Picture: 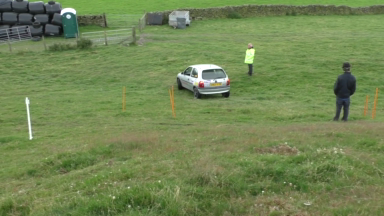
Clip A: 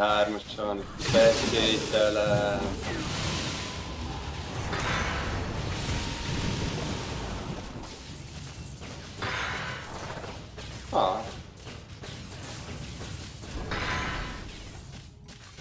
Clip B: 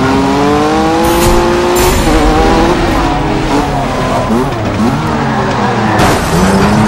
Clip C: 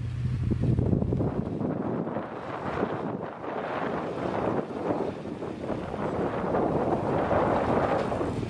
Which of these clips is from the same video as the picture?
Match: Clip C